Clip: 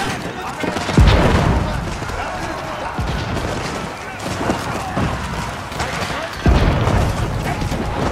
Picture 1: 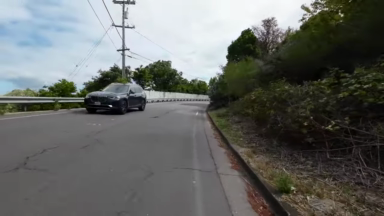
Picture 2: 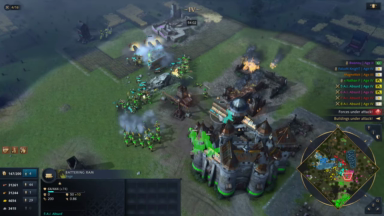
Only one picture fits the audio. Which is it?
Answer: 2